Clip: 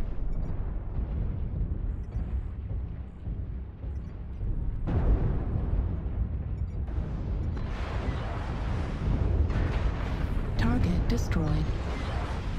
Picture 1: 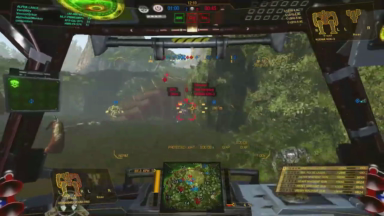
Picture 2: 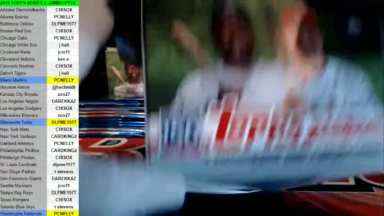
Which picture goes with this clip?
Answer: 1